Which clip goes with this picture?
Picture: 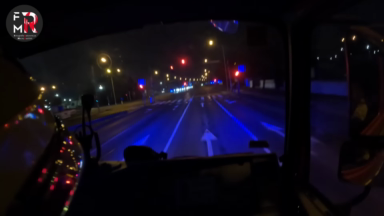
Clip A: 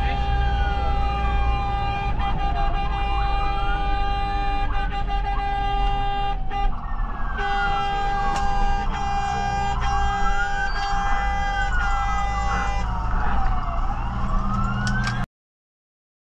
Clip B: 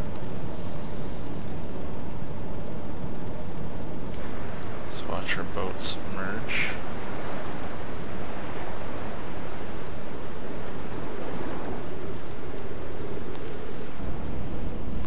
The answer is A